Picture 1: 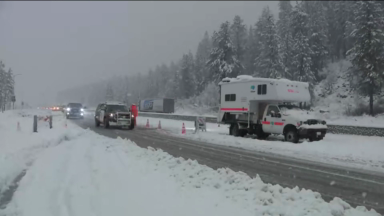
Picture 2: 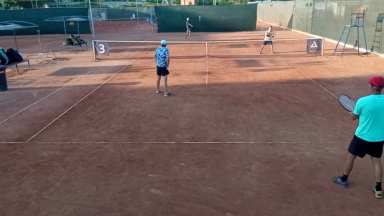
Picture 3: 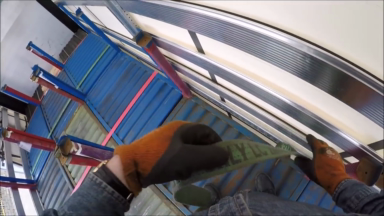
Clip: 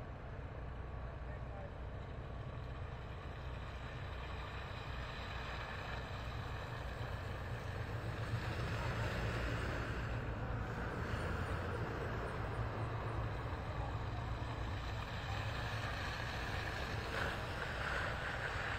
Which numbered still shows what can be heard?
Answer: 1